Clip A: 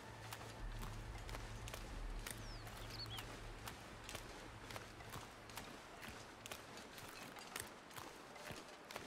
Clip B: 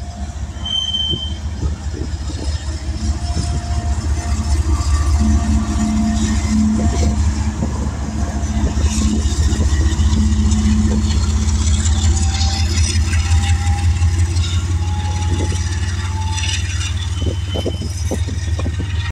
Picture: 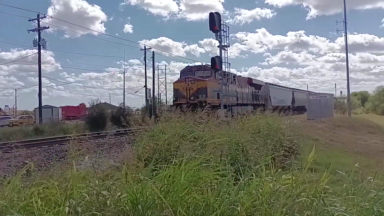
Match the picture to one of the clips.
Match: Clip B